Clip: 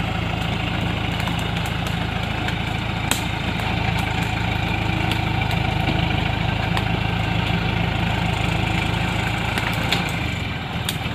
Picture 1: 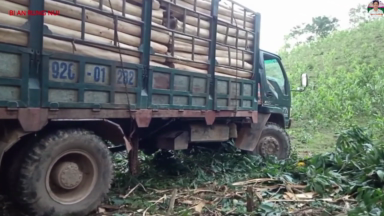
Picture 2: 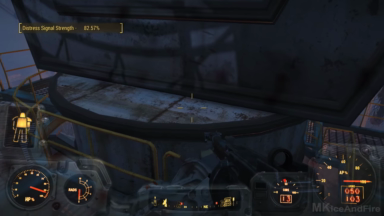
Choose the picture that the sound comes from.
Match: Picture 1